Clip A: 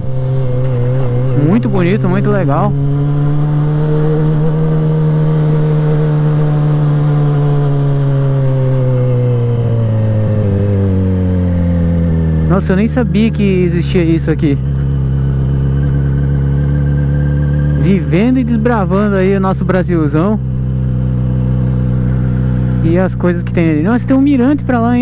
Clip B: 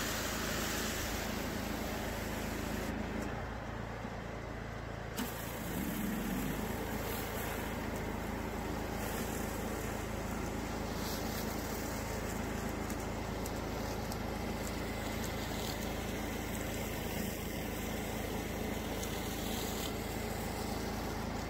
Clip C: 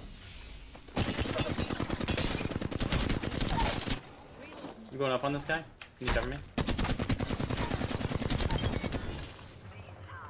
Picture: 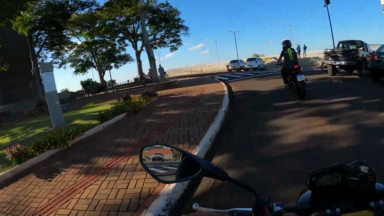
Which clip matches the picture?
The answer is A